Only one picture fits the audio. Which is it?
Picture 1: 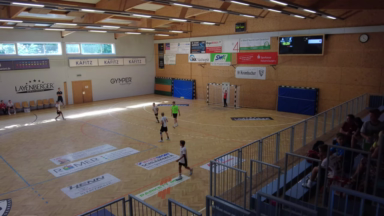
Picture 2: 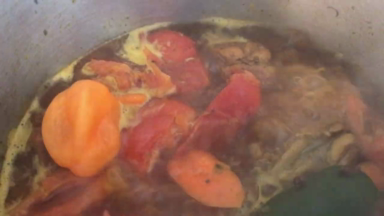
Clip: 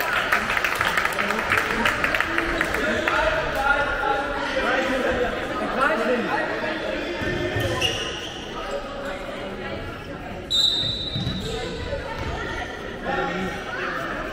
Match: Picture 1